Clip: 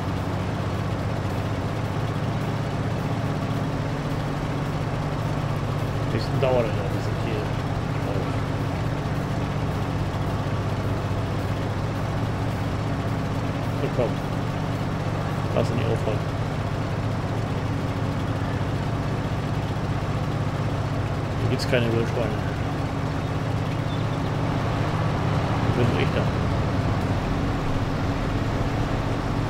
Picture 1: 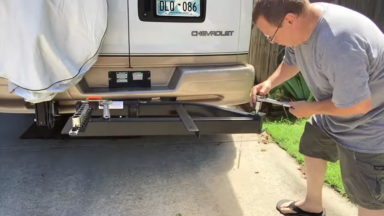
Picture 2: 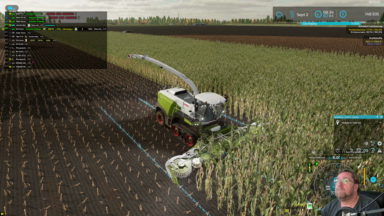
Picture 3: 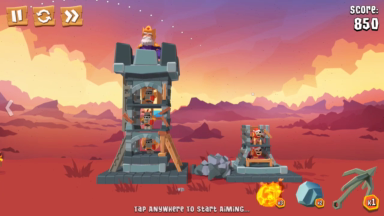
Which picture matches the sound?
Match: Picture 2